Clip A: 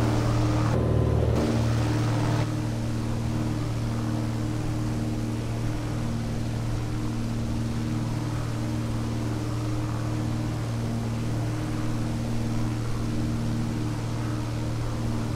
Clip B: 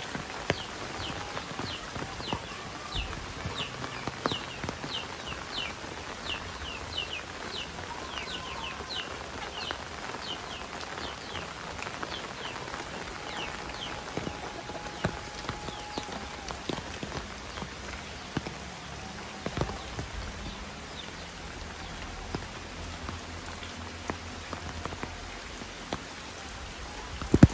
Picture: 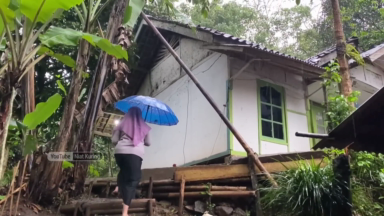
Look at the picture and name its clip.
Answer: B